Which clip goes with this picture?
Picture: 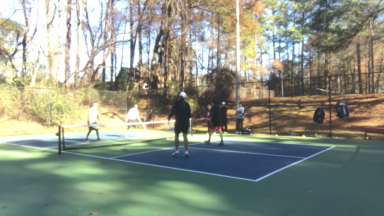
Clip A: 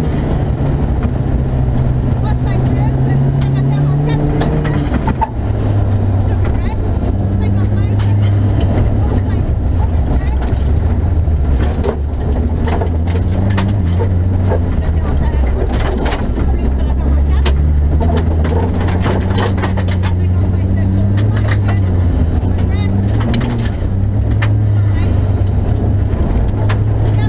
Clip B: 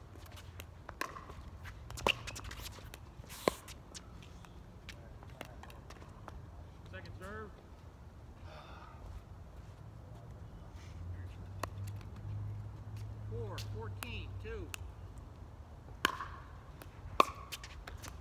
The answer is B